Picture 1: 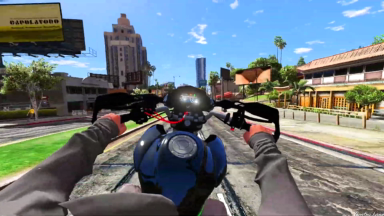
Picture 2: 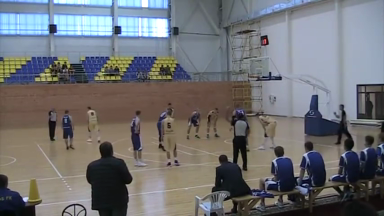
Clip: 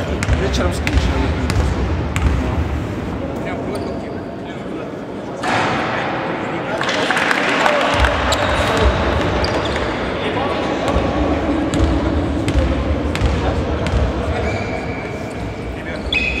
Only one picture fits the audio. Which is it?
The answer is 2